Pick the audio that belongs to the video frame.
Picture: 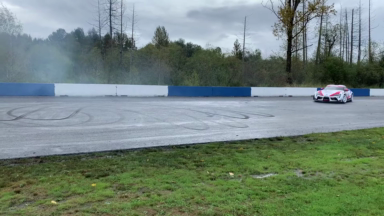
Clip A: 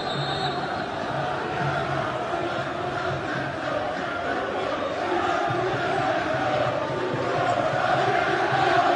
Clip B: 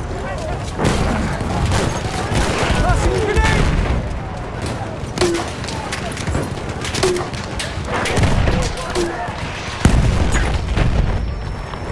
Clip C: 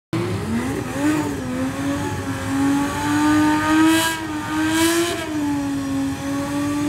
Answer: C